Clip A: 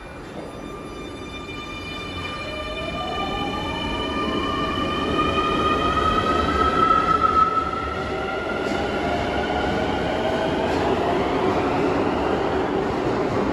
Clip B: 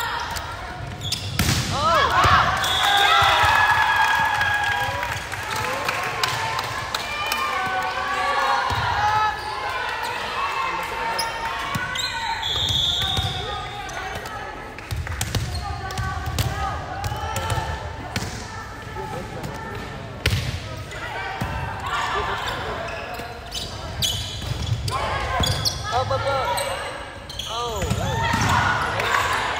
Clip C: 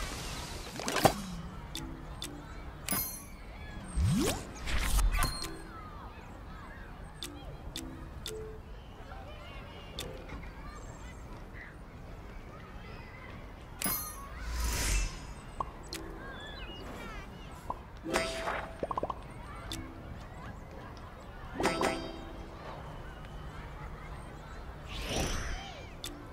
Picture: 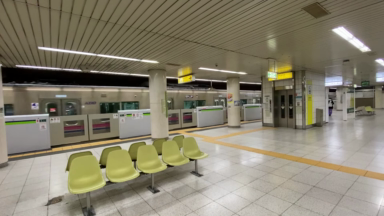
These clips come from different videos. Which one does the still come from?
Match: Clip A